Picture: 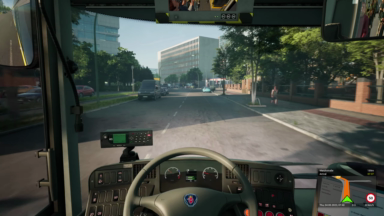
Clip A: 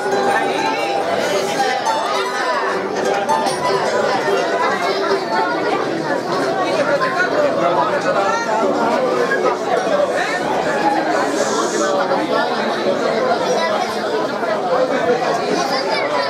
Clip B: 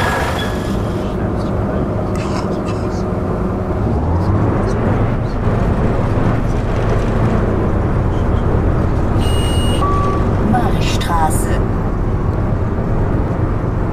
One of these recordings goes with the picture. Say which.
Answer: B